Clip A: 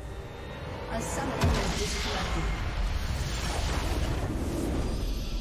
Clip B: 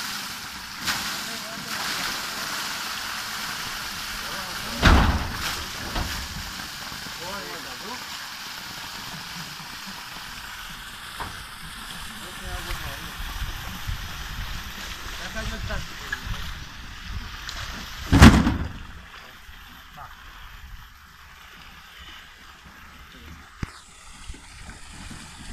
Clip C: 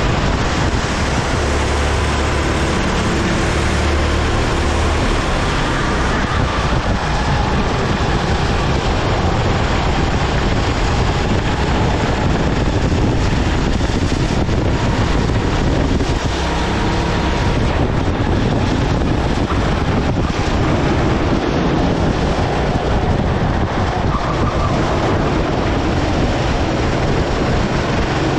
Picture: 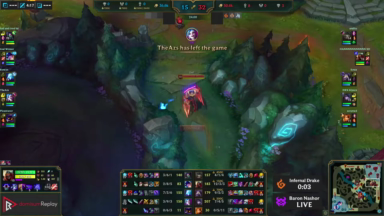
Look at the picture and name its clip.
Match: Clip A